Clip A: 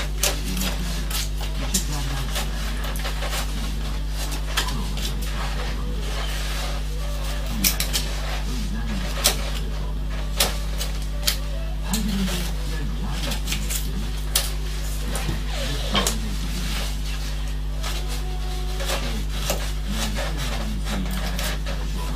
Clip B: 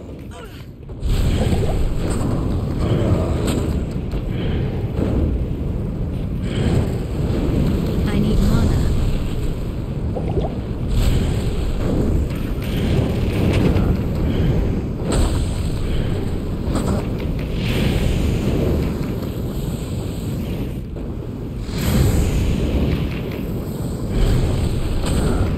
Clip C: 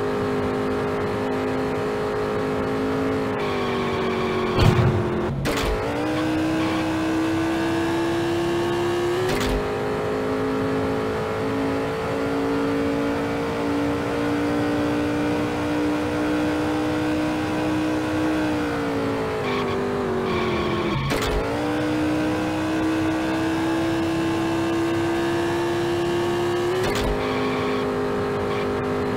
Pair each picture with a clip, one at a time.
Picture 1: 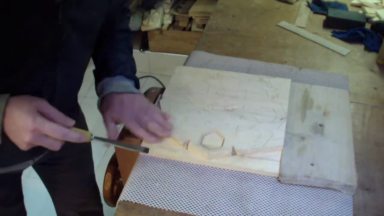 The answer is A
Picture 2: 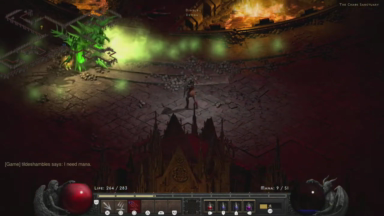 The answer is B